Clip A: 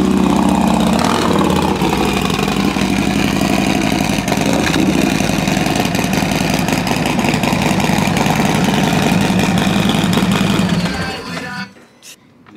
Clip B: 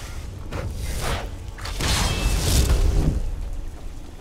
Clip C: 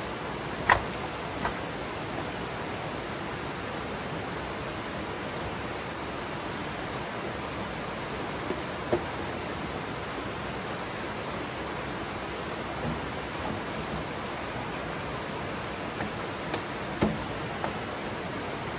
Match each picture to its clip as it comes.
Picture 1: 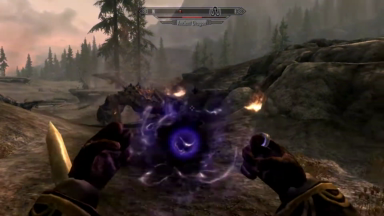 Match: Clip B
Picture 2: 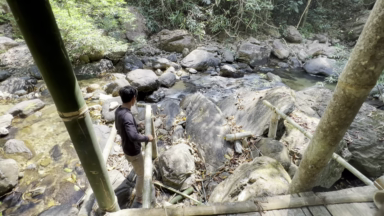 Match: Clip C